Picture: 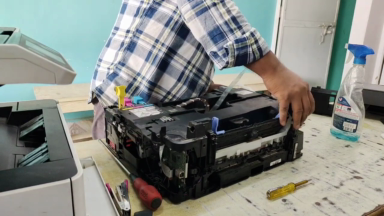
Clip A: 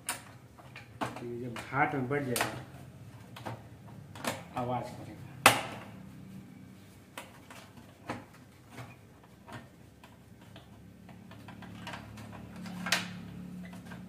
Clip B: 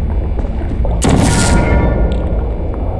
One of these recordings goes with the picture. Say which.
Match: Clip A